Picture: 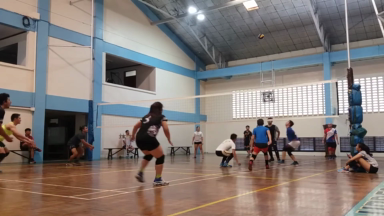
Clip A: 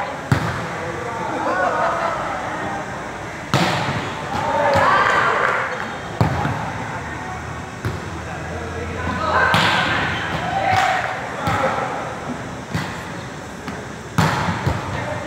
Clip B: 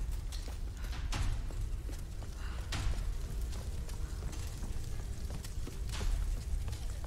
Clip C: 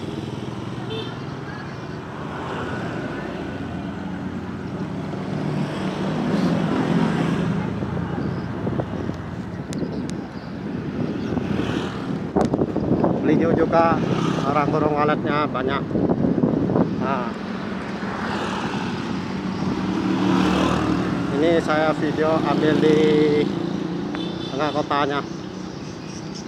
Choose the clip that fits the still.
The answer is A